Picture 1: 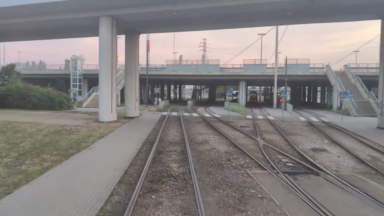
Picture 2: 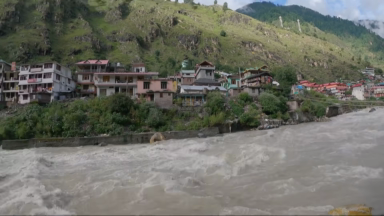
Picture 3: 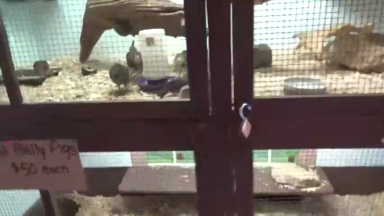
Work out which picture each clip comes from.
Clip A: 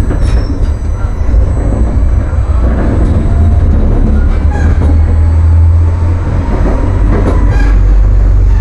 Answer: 1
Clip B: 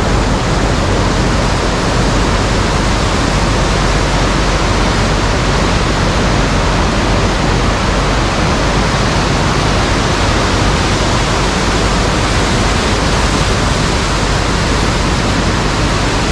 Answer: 2